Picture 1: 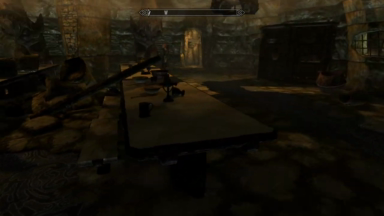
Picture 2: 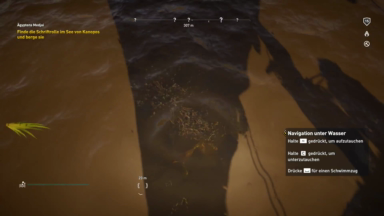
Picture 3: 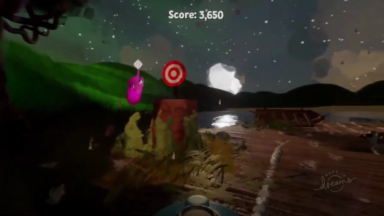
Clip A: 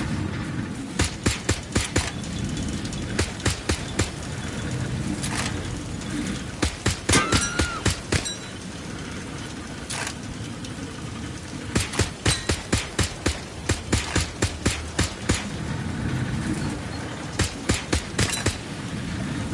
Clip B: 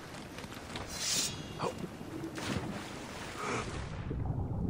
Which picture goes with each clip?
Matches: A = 3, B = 2